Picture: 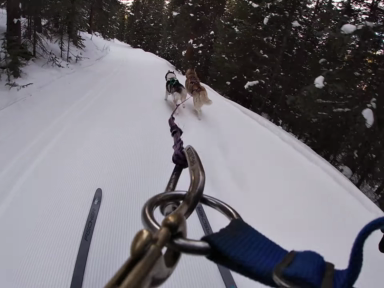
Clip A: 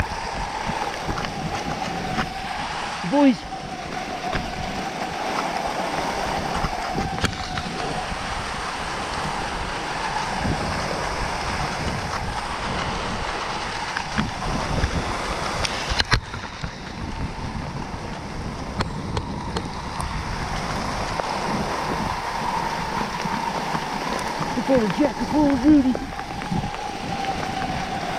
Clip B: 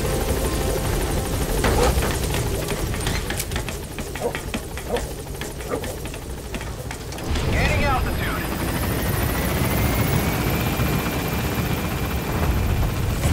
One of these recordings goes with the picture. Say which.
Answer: A